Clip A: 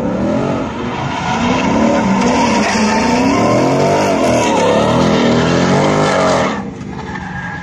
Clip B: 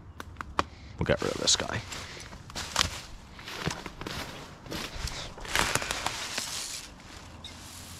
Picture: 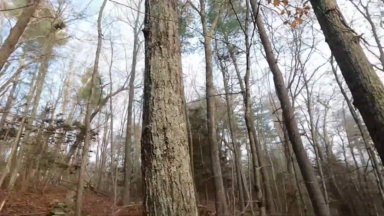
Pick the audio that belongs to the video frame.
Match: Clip B